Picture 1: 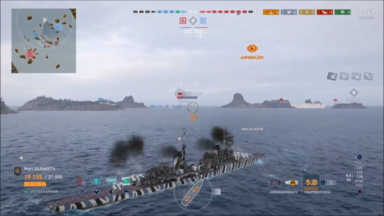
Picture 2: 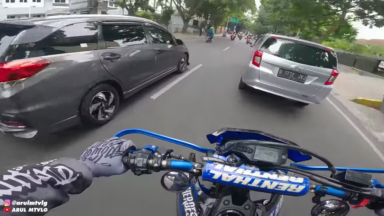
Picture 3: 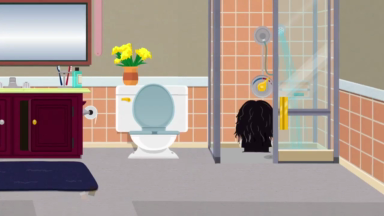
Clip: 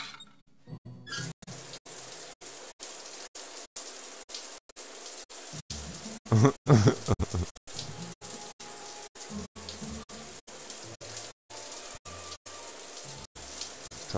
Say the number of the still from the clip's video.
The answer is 3